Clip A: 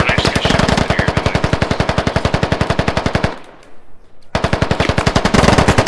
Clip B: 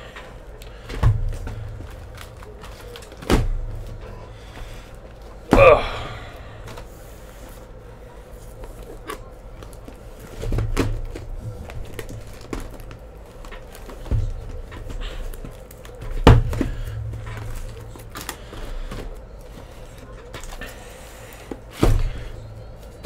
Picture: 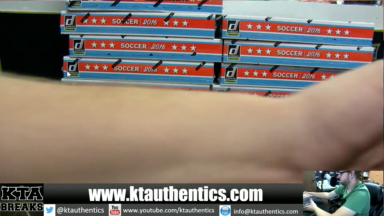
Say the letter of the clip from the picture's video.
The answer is B